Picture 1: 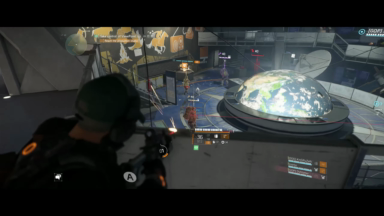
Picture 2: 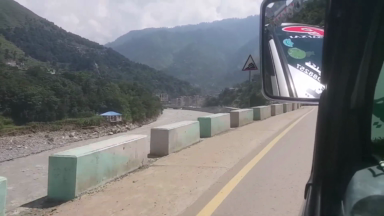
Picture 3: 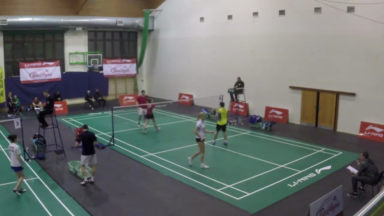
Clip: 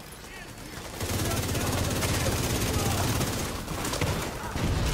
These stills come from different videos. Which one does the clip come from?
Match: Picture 1